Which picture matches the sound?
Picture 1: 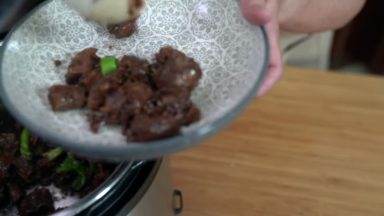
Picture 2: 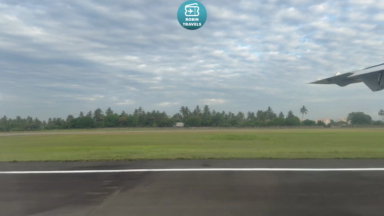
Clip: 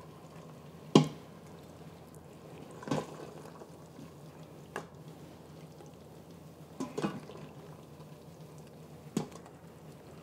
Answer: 1